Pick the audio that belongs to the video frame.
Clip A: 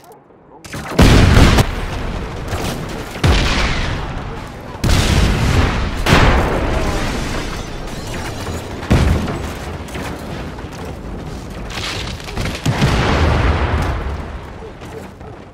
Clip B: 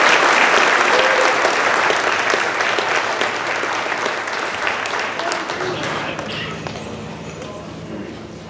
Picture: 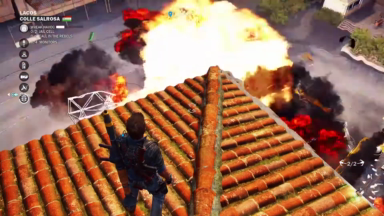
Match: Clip A